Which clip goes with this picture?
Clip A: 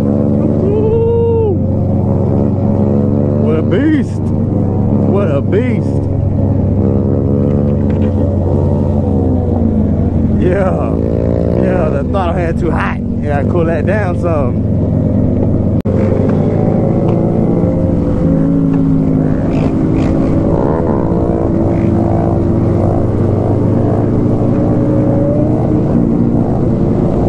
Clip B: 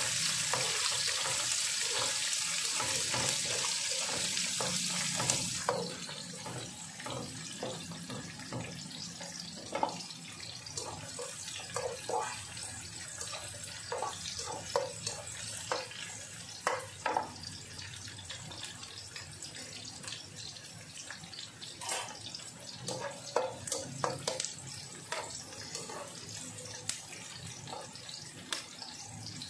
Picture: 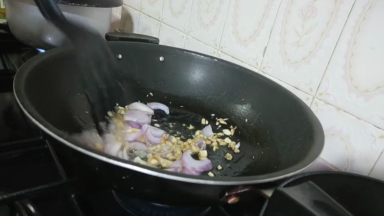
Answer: B